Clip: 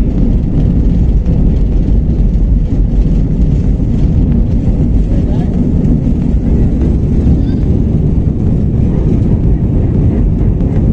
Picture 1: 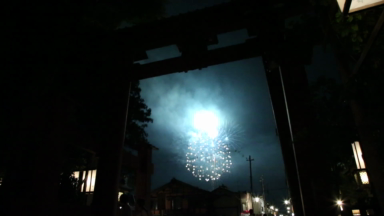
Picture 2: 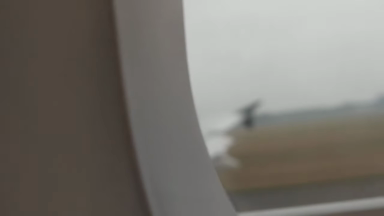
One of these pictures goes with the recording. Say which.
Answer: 2